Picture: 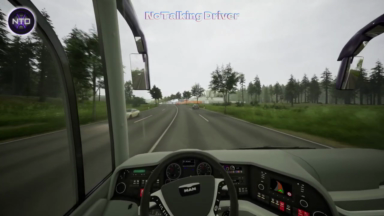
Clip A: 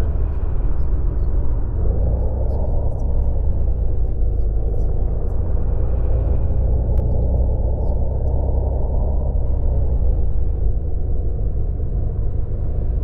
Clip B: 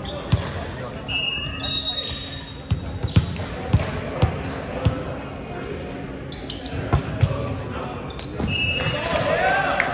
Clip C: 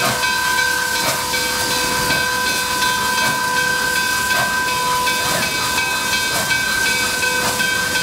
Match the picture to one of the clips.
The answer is A